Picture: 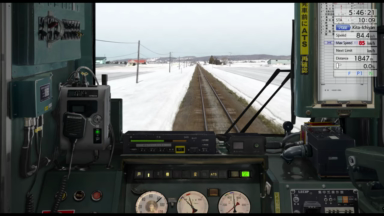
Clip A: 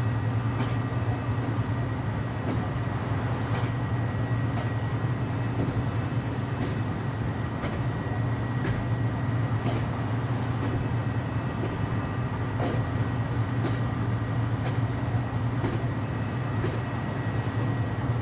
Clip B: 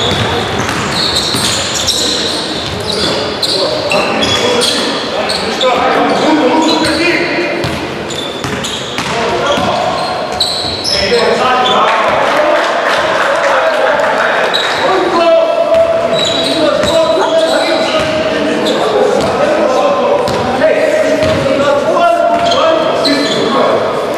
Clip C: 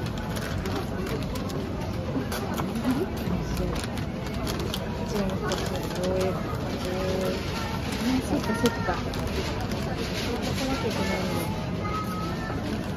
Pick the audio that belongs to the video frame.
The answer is A